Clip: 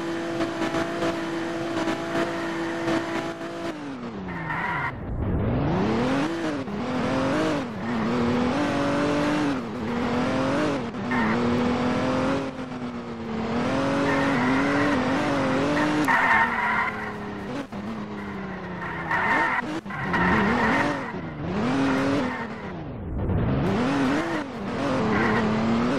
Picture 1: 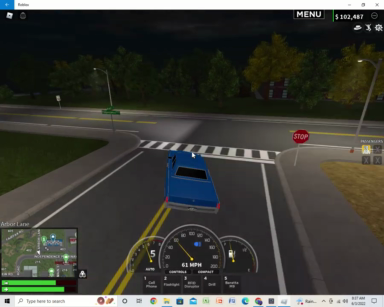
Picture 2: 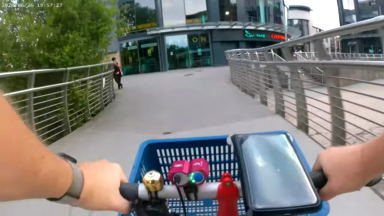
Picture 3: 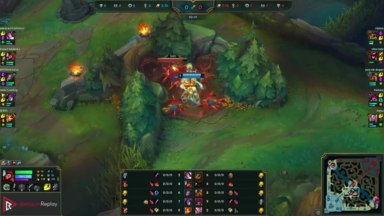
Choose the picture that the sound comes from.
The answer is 1